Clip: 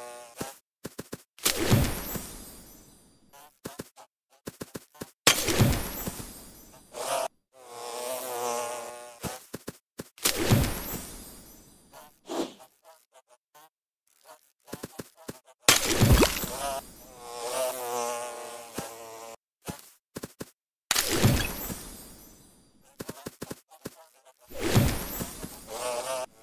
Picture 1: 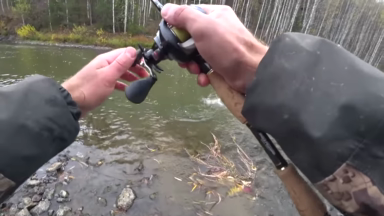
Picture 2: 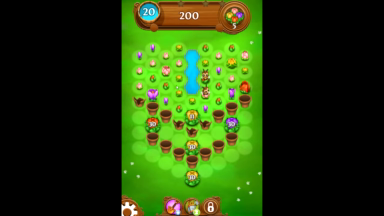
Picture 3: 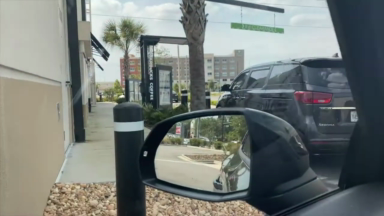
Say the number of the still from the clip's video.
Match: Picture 2